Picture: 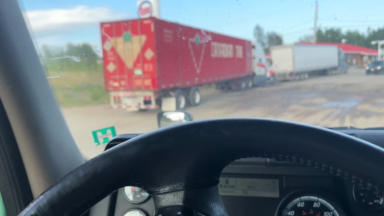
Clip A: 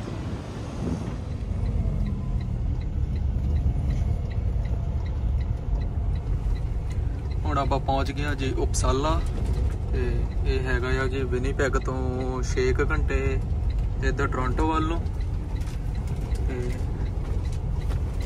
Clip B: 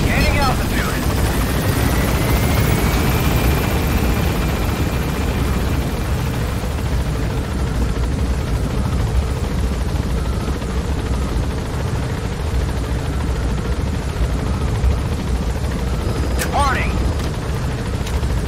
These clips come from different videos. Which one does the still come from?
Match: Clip A